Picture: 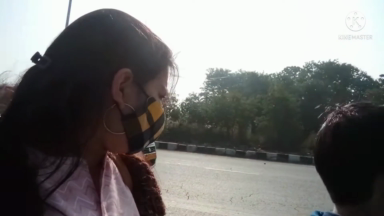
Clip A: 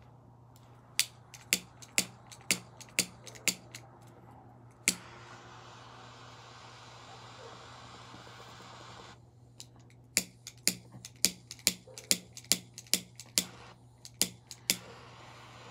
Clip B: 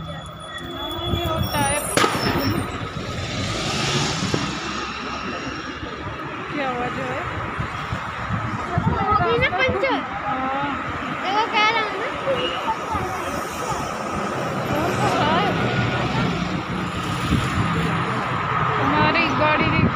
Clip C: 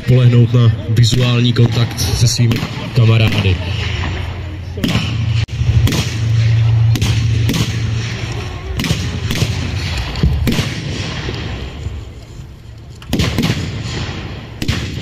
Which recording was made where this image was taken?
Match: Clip B